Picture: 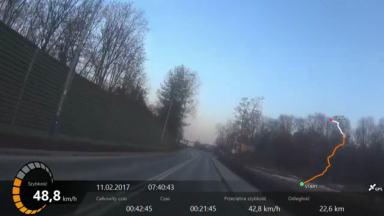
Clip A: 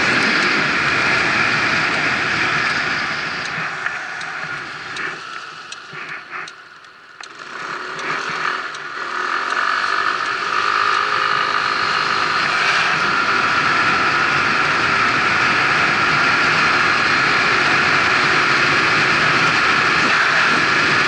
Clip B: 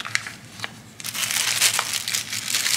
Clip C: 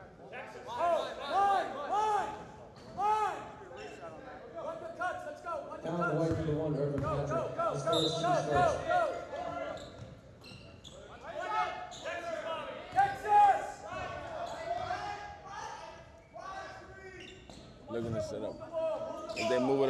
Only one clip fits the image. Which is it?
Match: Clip A